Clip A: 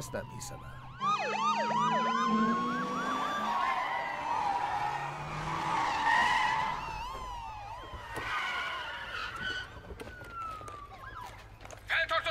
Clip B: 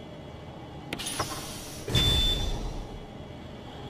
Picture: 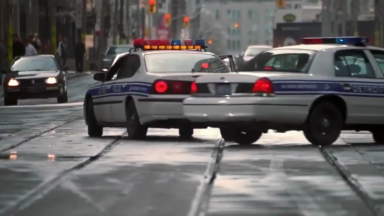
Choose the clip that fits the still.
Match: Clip A